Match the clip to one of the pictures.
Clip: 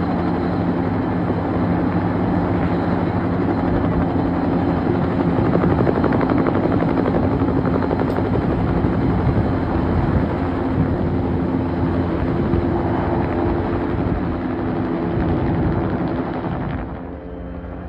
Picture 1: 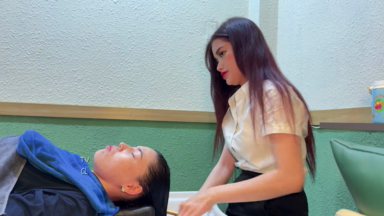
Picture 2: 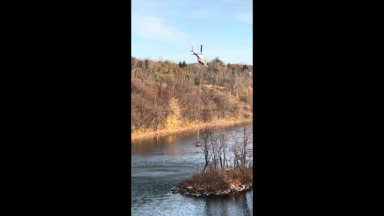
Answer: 2